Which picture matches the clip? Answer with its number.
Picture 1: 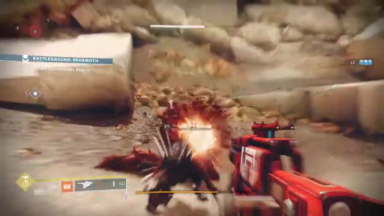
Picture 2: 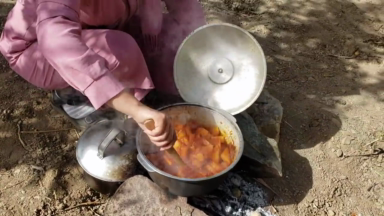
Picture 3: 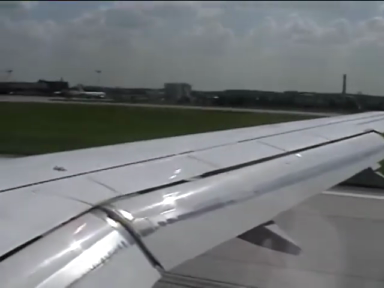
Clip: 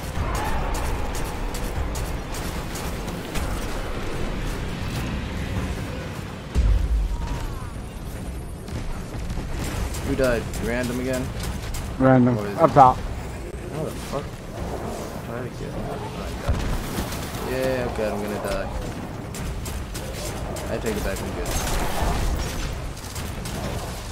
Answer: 1